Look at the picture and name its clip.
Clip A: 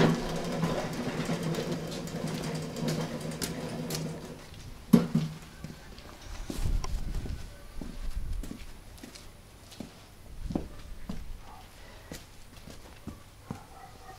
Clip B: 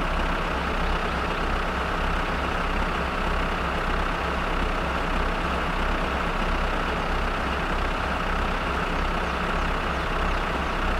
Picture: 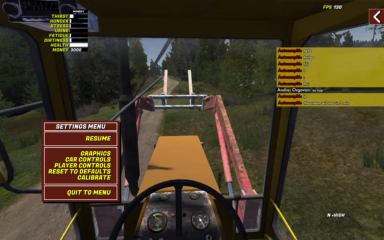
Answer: B